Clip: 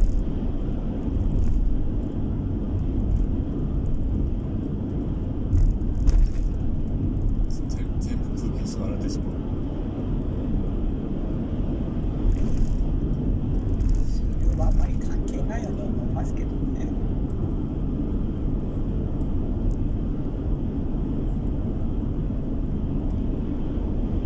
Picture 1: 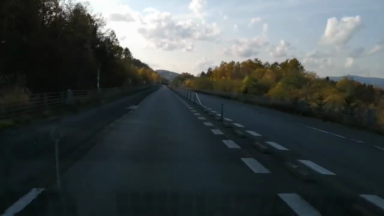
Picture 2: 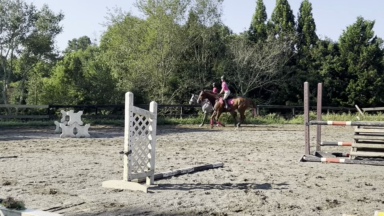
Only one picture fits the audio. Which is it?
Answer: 1